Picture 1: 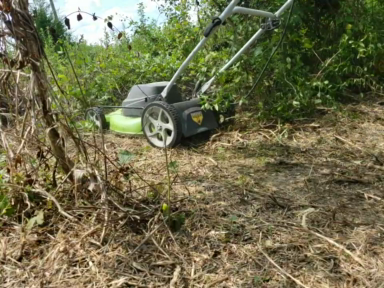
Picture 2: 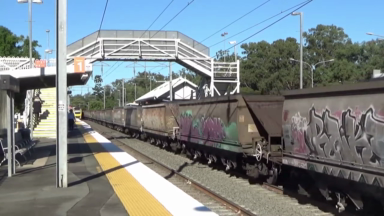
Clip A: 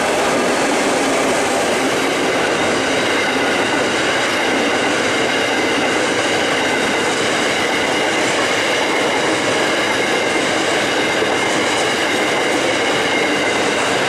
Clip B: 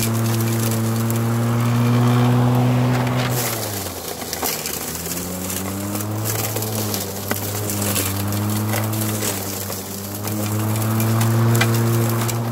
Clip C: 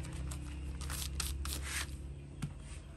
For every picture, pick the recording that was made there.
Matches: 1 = B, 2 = A